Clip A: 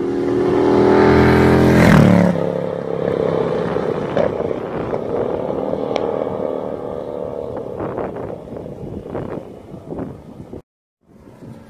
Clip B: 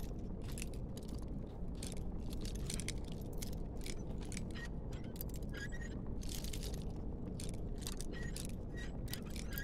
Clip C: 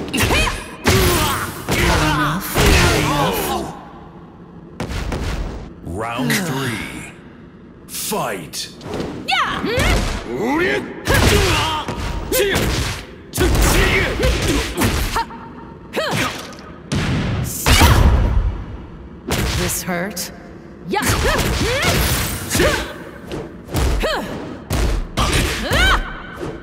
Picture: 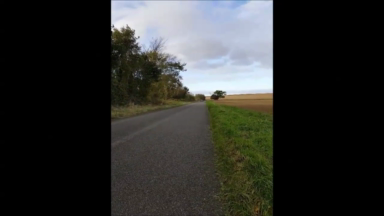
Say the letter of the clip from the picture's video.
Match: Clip A